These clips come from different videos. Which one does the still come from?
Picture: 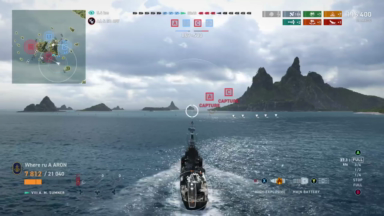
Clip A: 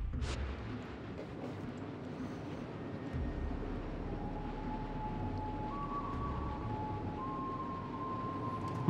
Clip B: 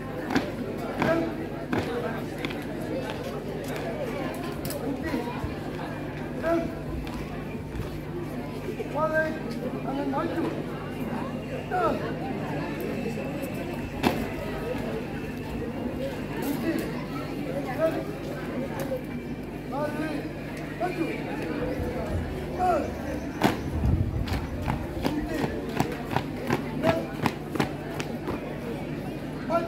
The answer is A